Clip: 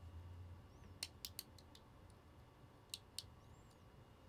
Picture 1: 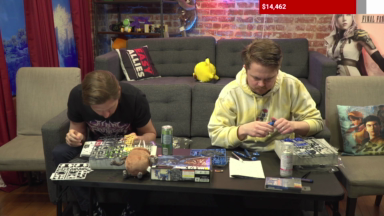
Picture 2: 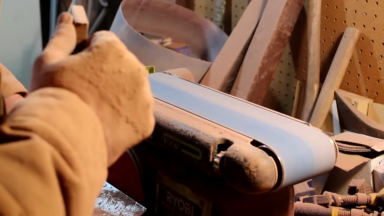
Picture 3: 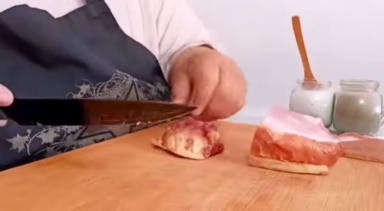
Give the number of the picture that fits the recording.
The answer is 1